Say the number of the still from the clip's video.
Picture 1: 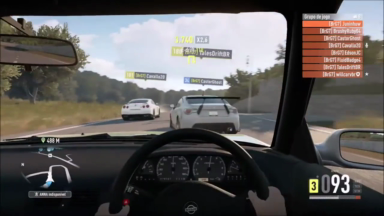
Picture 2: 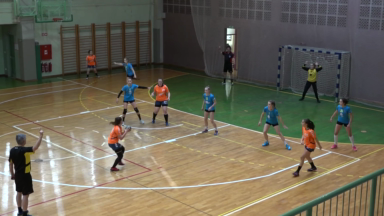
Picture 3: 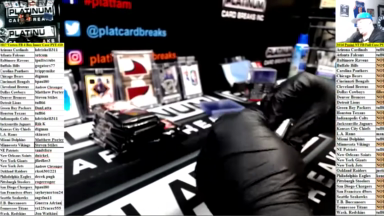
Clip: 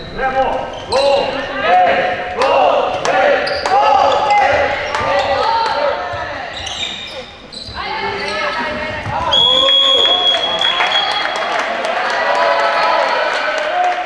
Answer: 2